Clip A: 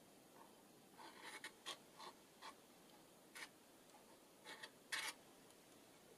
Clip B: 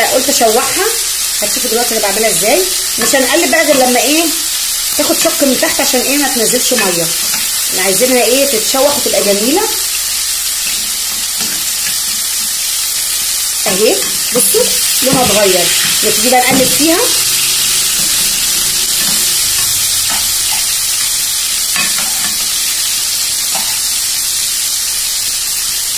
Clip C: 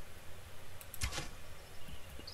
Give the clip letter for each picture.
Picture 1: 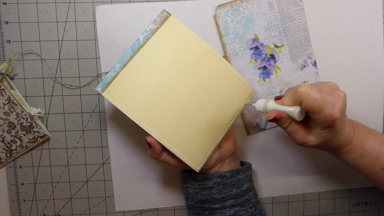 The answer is A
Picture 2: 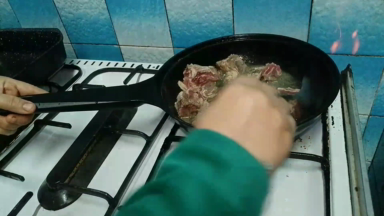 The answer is B